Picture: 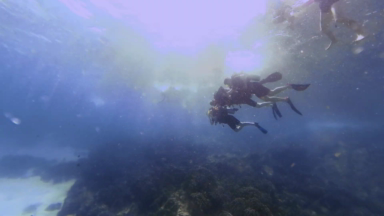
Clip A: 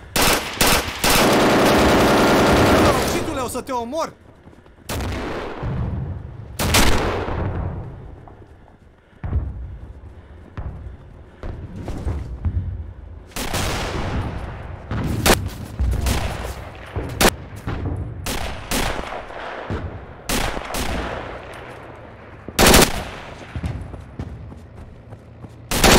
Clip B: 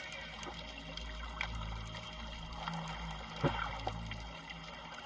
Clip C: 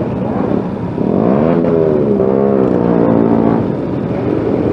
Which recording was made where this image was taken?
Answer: B